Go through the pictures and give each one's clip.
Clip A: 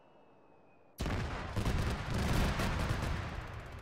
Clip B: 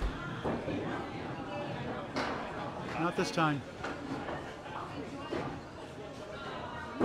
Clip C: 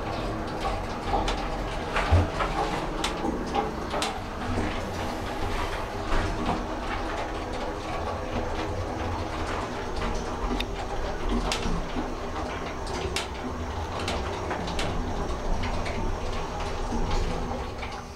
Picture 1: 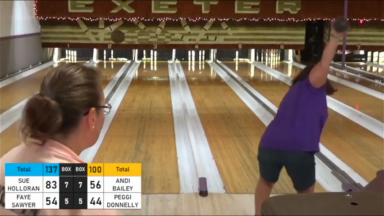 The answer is B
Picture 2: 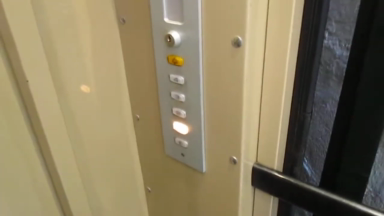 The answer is C